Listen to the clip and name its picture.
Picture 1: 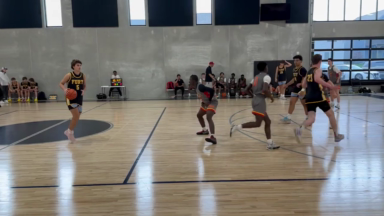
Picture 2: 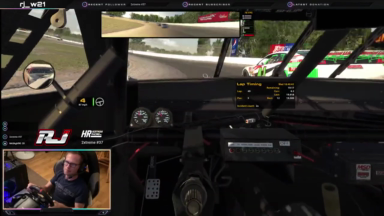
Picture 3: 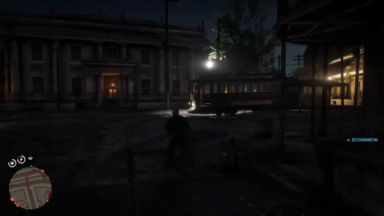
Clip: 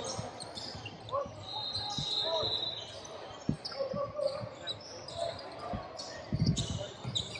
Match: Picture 1